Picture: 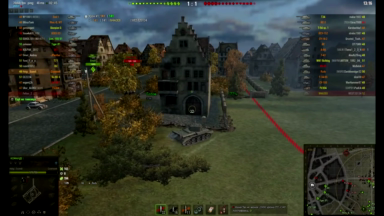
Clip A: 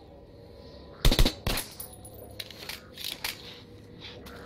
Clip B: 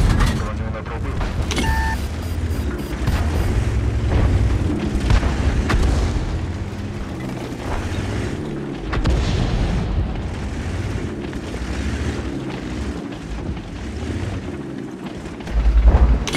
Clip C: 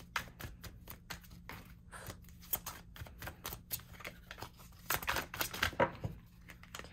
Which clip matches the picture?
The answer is B